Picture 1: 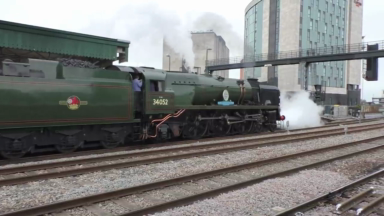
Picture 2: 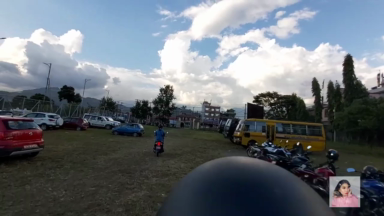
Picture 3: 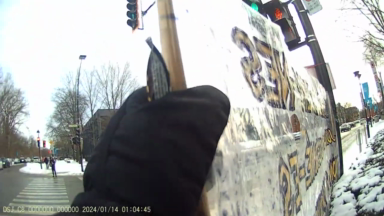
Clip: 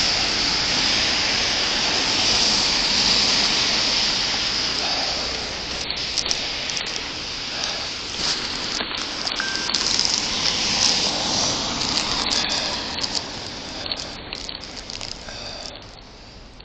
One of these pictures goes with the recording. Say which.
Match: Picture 3